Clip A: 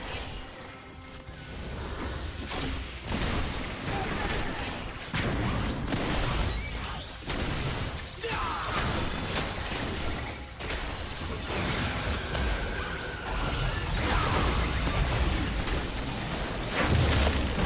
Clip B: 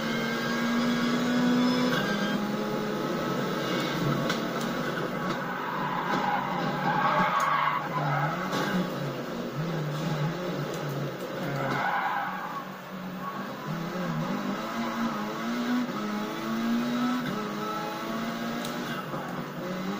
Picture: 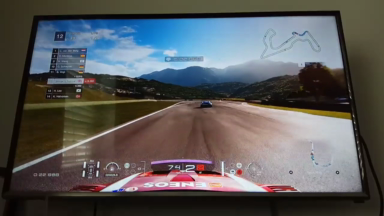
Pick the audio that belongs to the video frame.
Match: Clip B